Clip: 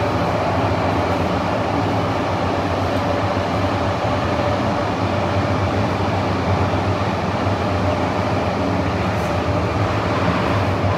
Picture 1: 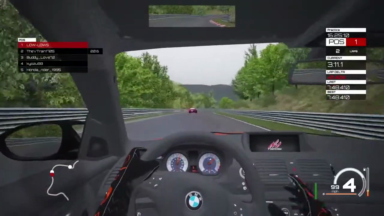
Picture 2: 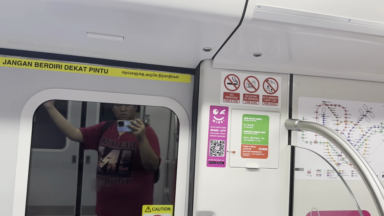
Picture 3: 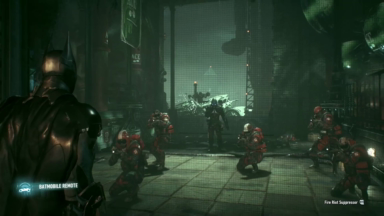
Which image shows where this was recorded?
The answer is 2